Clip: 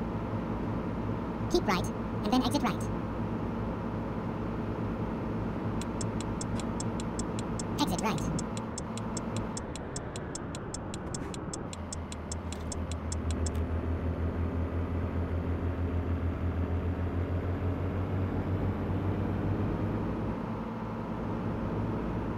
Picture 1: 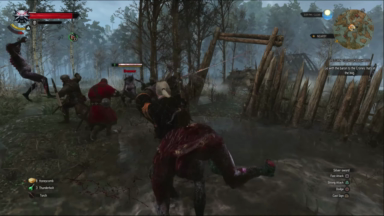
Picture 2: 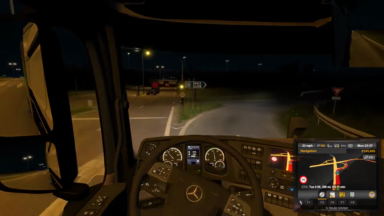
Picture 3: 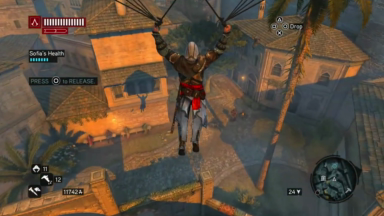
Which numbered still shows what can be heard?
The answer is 2